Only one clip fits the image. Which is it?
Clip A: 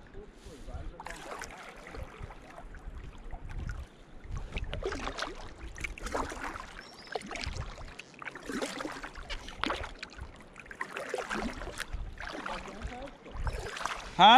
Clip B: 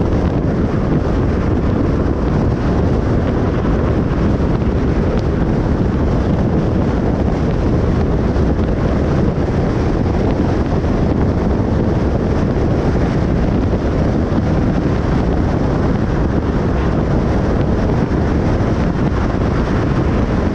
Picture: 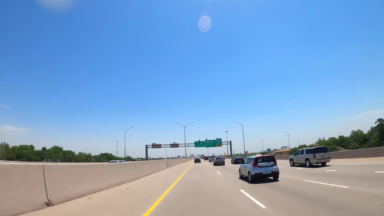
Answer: B